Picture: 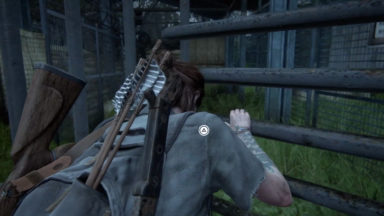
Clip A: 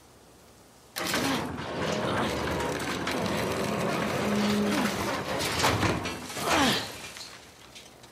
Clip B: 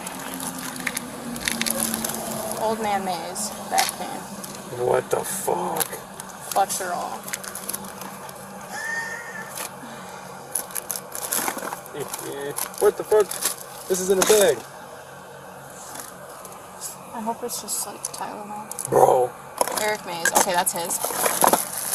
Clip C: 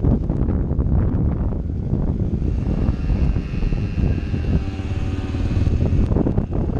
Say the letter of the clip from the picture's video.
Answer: A